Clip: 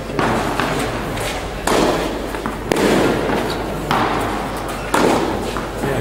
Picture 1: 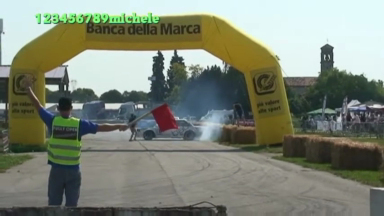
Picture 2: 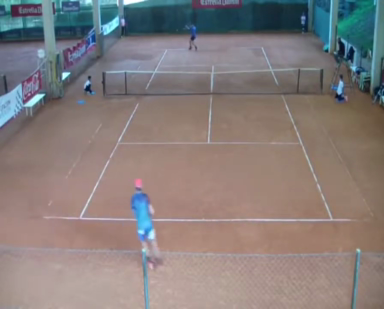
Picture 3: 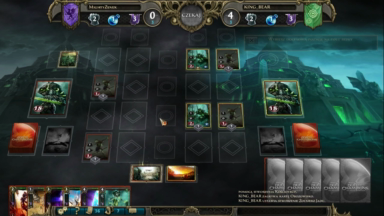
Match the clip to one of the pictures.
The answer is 2